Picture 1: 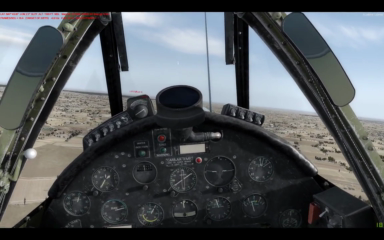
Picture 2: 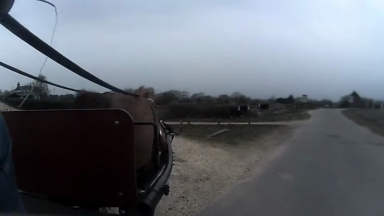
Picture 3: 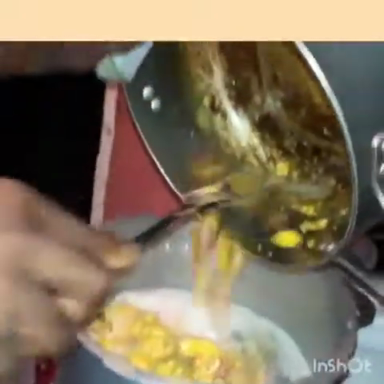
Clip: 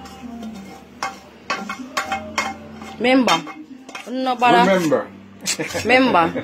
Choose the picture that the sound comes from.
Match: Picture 3